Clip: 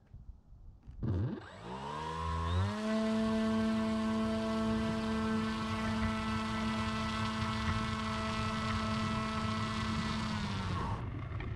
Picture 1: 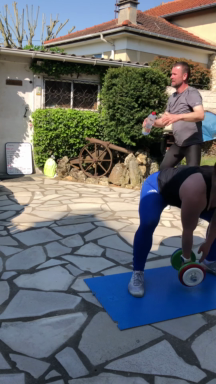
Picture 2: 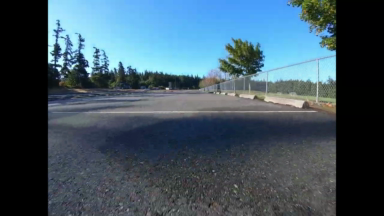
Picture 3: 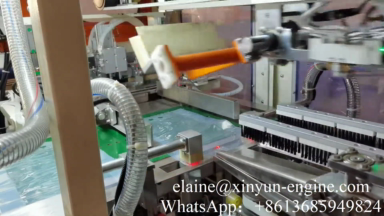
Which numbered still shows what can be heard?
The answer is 2